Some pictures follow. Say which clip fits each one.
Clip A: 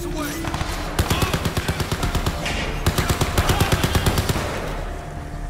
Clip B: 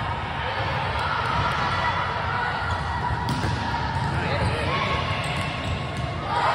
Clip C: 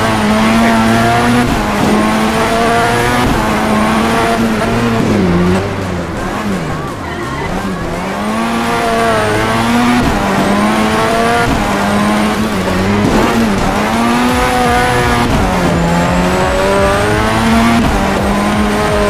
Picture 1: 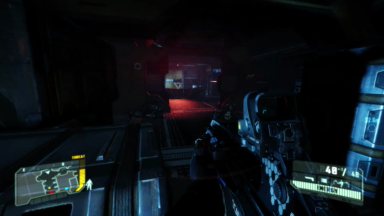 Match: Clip A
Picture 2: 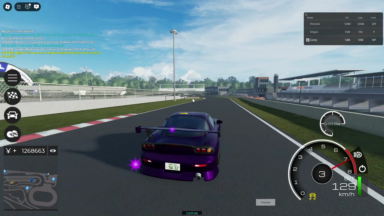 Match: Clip C